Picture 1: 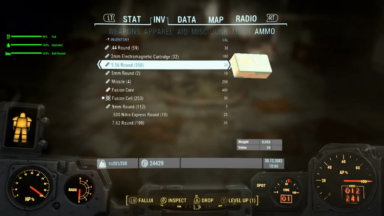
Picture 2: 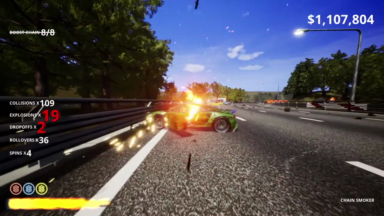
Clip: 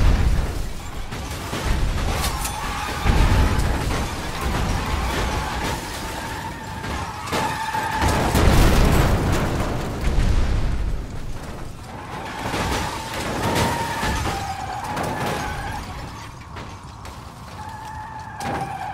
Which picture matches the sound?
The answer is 2